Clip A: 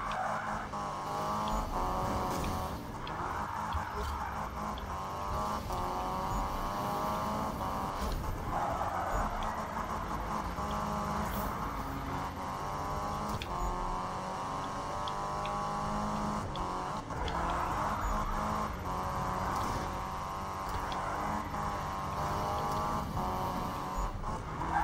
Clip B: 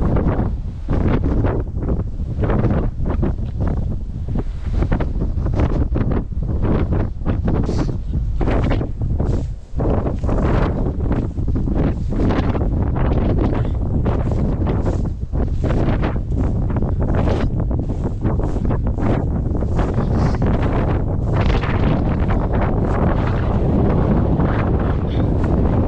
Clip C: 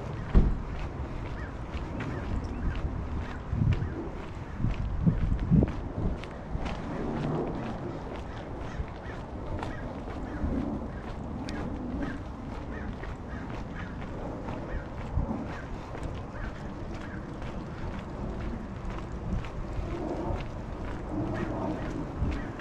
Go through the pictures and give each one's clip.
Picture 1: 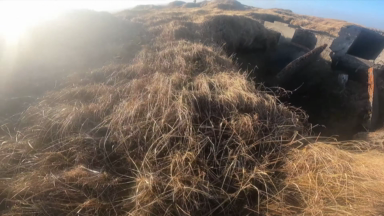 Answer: B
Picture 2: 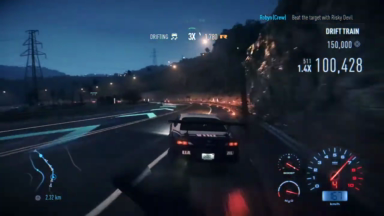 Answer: A